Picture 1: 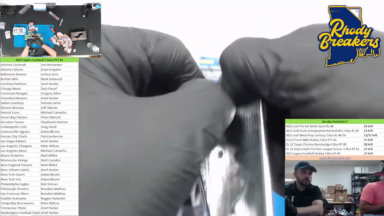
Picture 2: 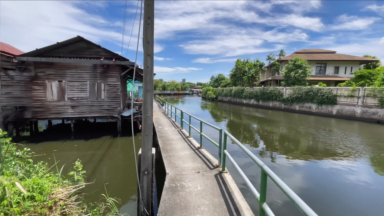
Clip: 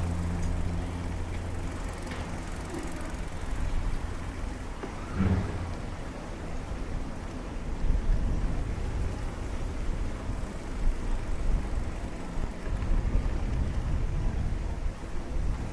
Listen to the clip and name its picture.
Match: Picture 2